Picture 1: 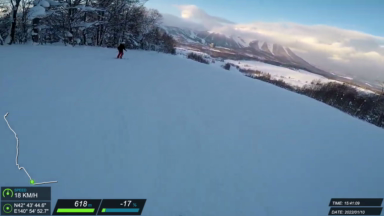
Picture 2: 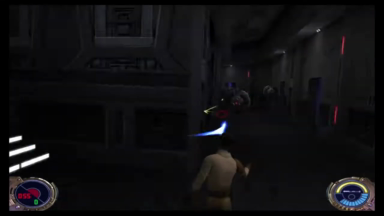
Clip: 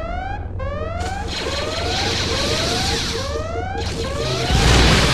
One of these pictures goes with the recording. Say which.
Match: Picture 2